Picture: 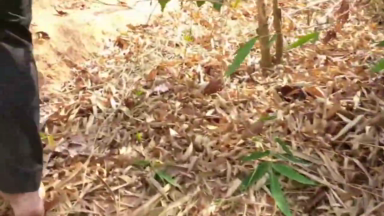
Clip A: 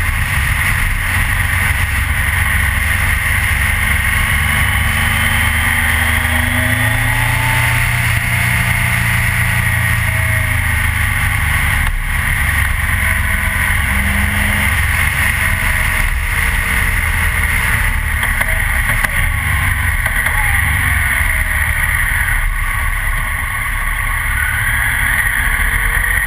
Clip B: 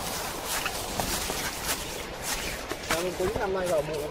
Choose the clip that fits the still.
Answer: B